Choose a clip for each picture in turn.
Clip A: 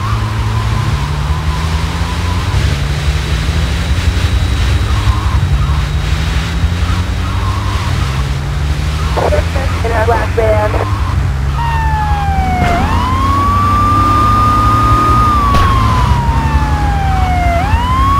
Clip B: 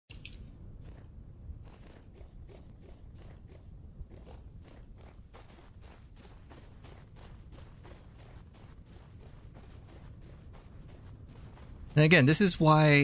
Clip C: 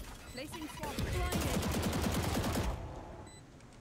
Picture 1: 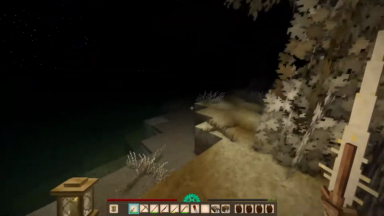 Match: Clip B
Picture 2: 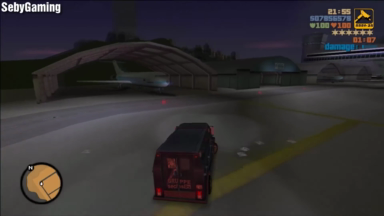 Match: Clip A